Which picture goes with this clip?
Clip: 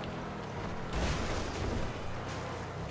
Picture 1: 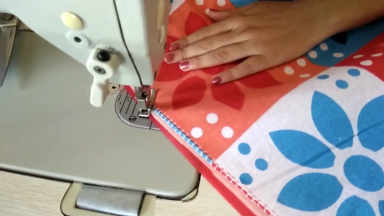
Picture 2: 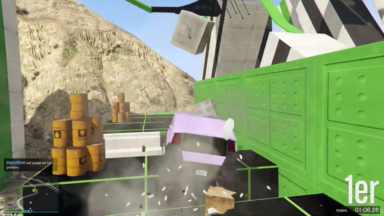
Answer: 2